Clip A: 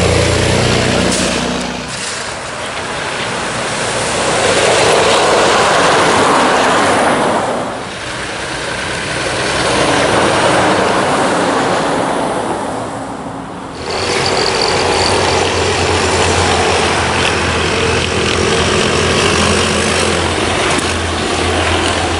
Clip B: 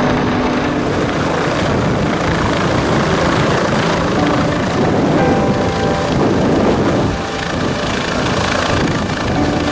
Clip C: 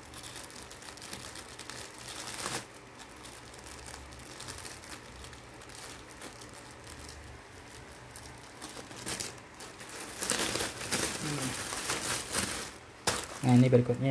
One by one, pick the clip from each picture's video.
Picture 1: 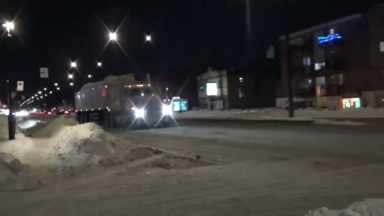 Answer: A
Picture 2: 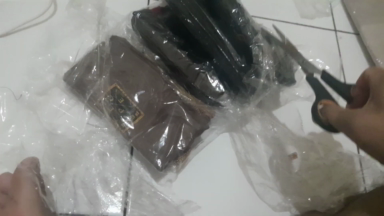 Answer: C